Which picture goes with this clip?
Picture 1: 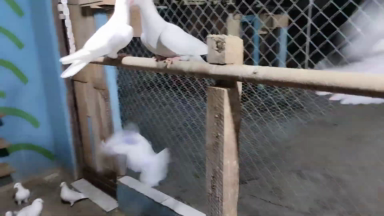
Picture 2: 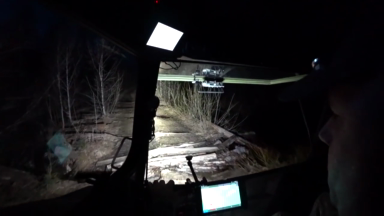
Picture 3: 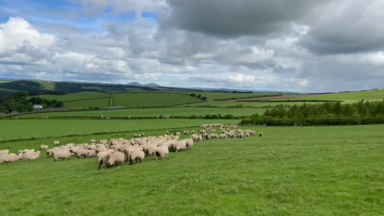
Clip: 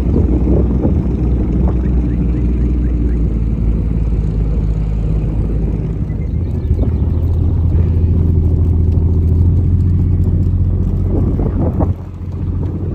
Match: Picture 3